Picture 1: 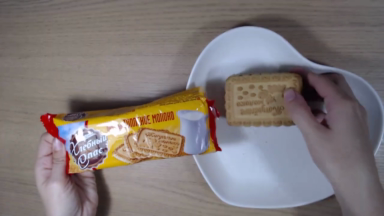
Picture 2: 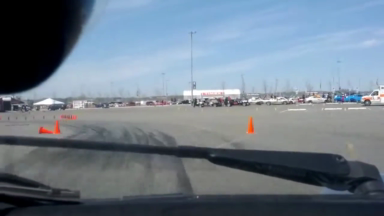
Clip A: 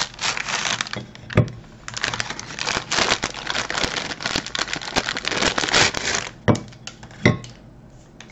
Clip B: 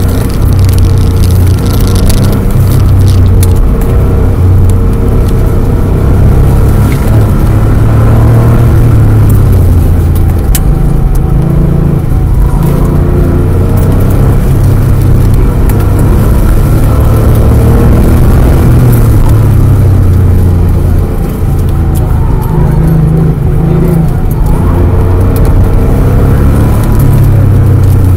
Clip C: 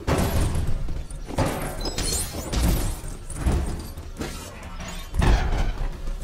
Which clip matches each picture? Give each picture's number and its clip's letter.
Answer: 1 A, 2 B